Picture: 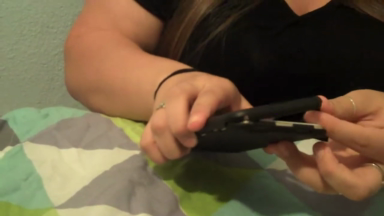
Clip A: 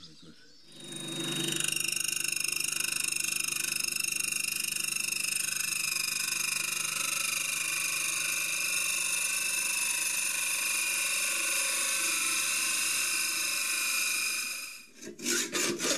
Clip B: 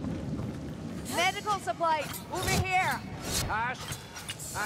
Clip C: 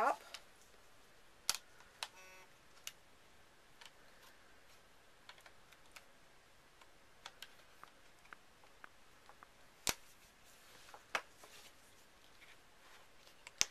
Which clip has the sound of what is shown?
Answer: C